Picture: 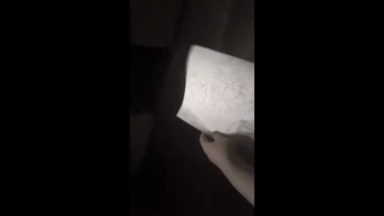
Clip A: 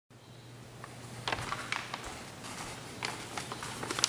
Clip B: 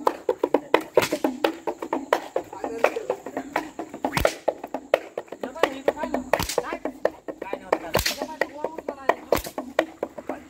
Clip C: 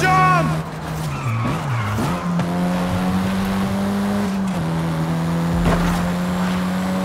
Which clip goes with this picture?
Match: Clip A